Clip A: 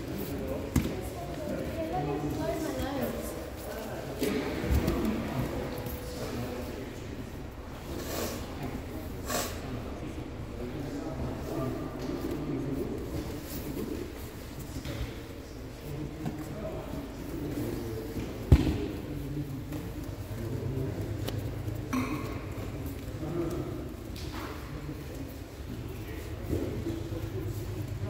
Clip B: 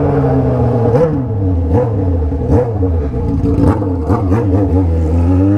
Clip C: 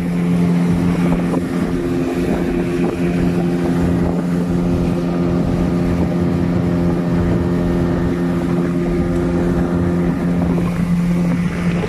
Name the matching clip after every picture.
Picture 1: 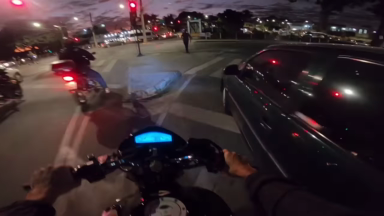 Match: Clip B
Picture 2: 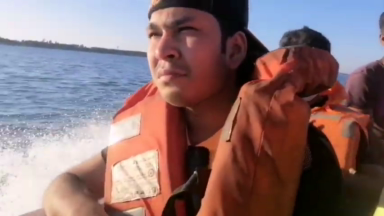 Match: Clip C